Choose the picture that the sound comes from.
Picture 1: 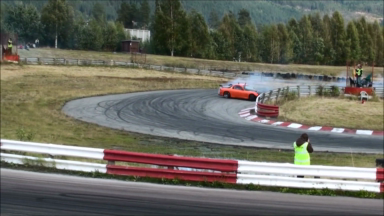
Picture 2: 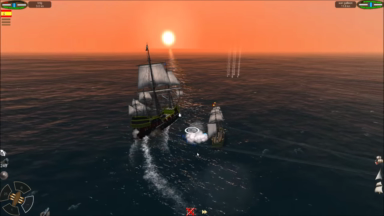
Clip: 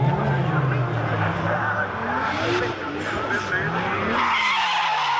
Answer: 1